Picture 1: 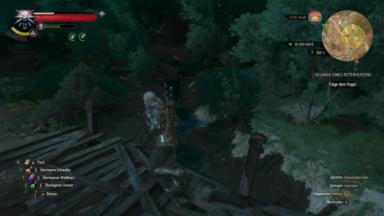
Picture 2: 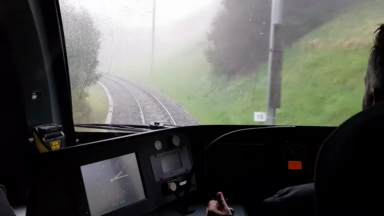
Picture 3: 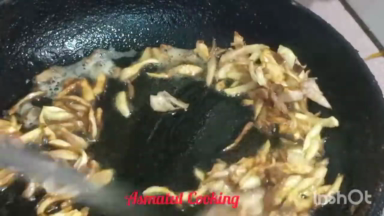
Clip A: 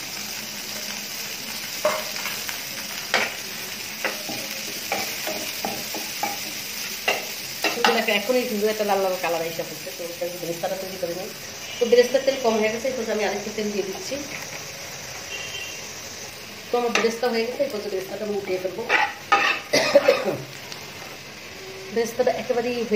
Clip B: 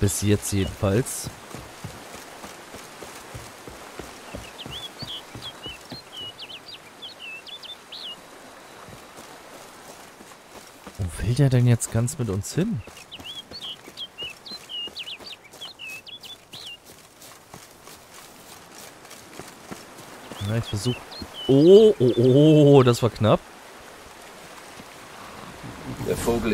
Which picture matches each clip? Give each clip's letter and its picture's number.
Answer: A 3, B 1